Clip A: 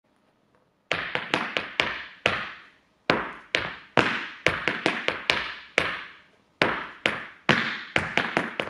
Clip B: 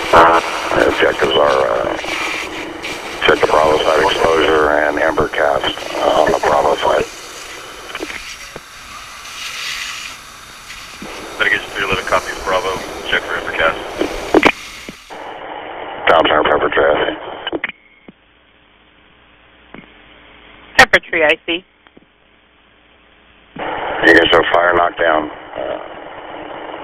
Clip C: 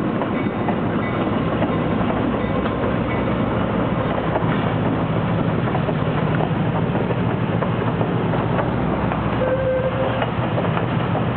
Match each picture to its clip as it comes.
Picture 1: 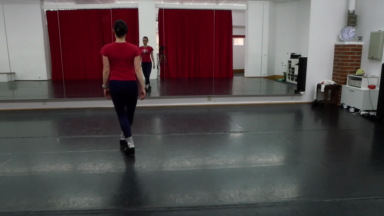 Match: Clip A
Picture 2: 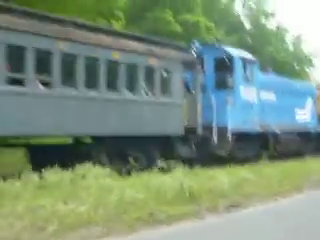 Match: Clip C